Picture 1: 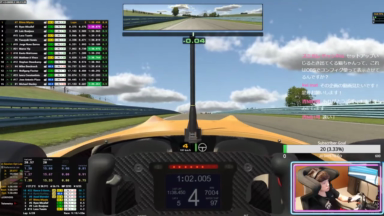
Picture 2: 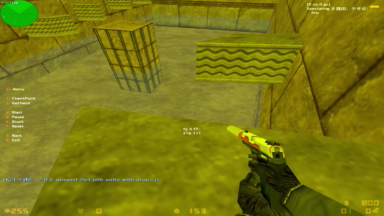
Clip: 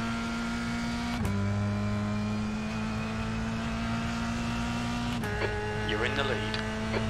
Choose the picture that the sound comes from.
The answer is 1